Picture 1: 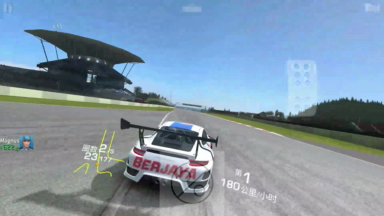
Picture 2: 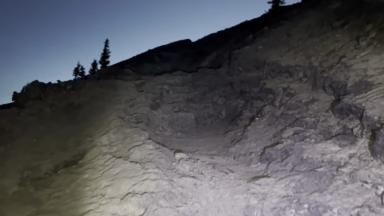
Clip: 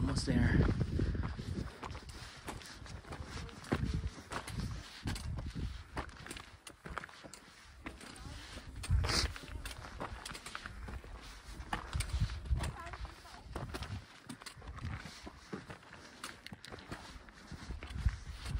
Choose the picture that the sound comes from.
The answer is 2